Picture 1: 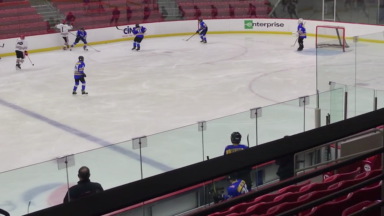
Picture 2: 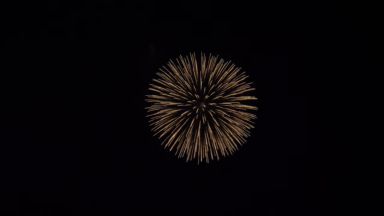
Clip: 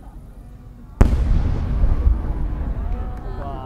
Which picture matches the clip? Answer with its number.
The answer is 2